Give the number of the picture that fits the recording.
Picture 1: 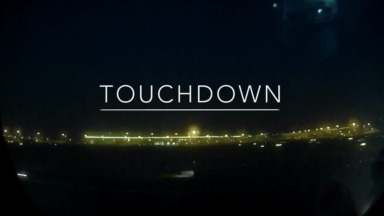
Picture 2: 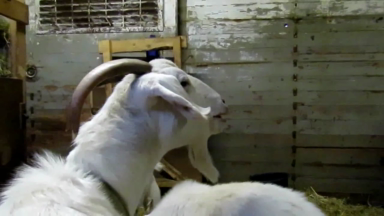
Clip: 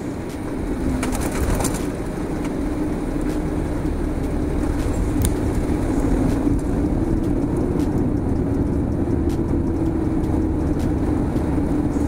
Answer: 1